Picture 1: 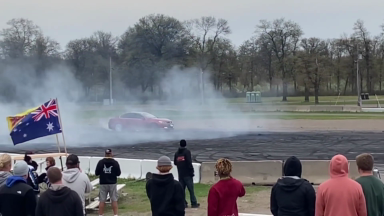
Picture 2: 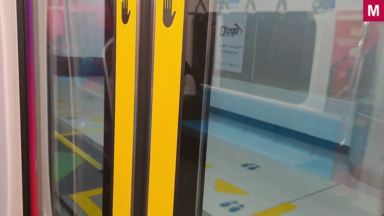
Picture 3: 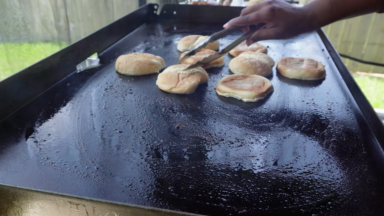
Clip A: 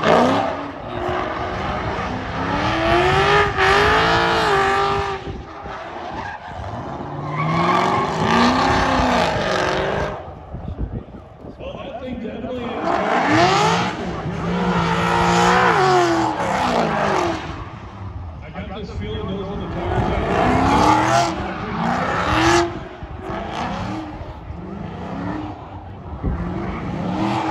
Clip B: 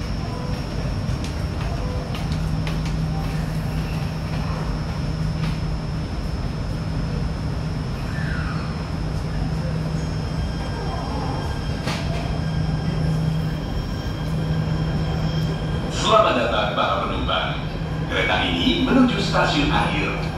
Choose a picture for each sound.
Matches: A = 1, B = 2